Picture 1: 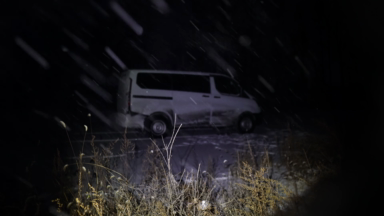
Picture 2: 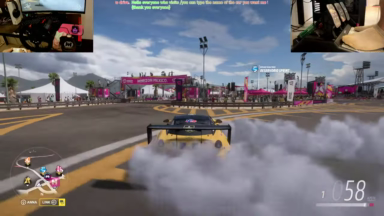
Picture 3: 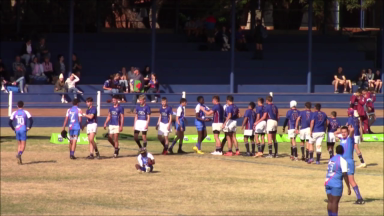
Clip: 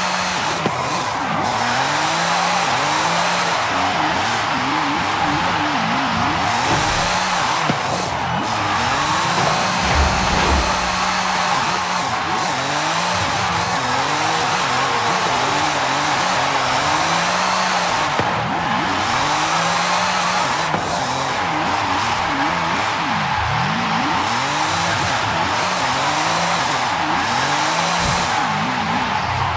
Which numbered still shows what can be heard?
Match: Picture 2